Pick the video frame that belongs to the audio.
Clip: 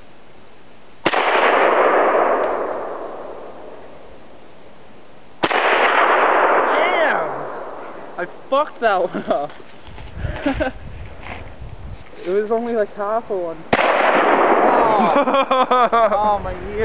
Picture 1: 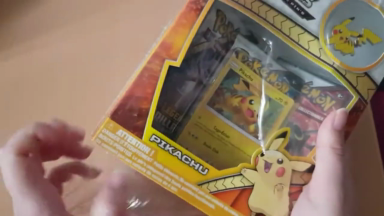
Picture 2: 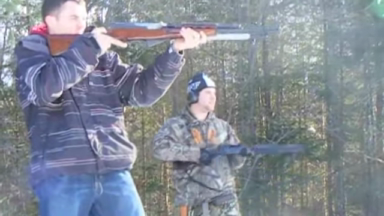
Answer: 2